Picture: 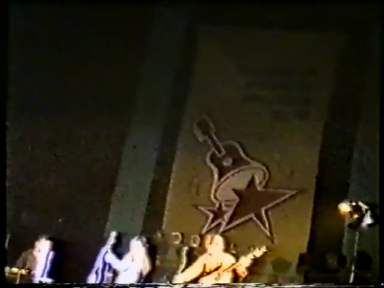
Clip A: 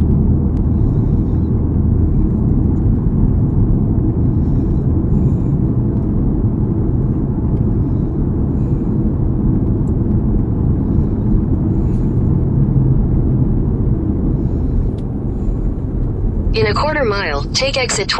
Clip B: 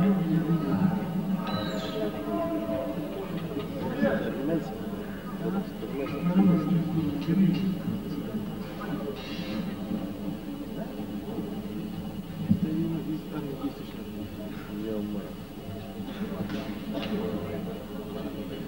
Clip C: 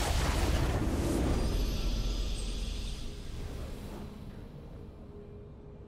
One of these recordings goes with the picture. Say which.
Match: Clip B